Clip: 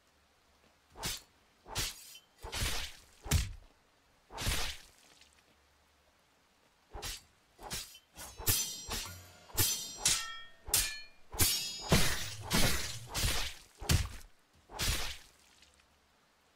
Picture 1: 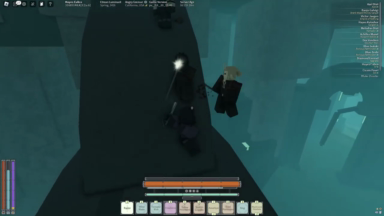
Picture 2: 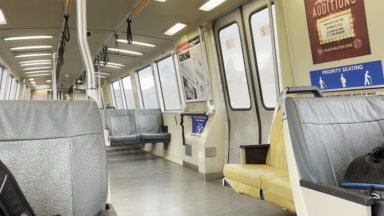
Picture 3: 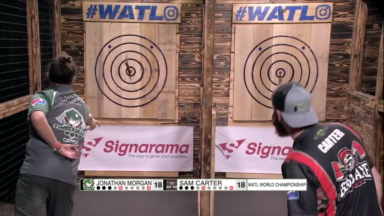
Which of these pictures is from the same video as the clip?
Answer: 1